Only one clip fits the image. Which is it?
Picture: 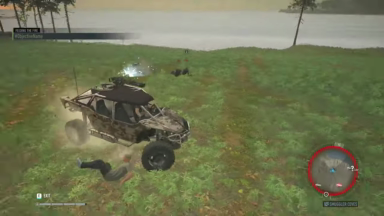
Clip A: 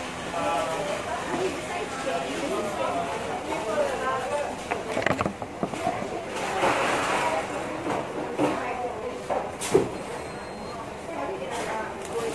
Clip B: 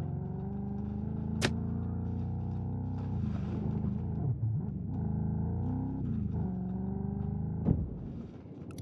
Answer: B